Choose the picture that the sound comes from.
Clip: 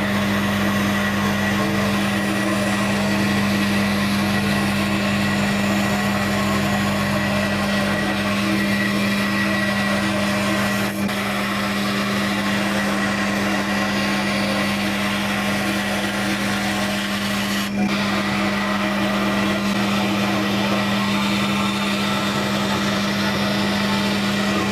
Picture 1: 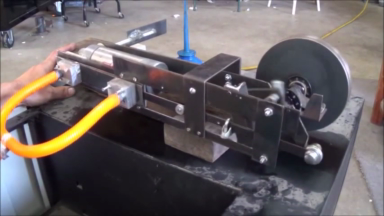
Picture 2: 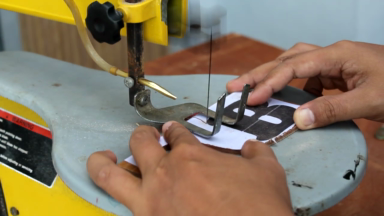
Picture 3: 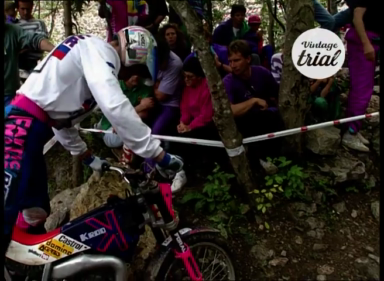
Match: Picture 2